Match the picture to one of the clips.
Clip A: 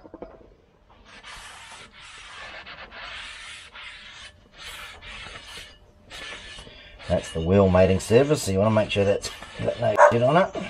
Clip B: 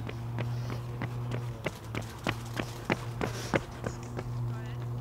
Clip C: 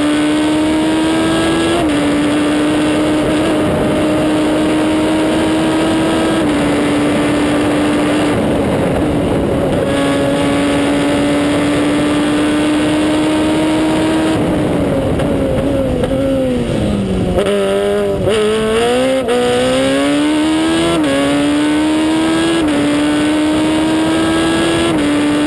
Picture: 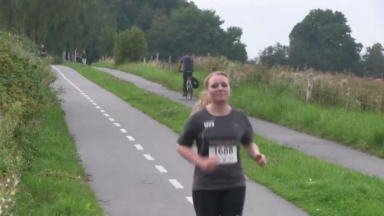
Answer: B